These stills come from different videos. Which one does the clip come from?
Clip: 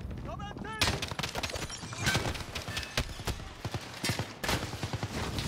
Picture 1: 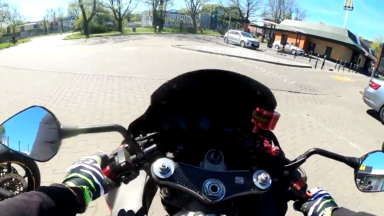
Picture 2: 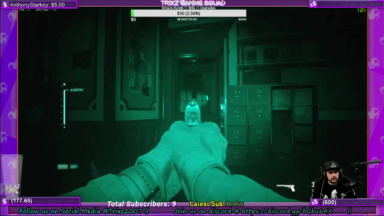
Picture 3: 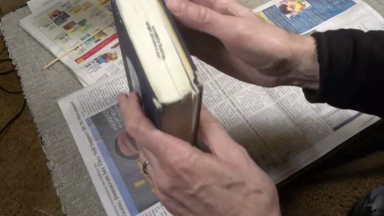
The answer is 2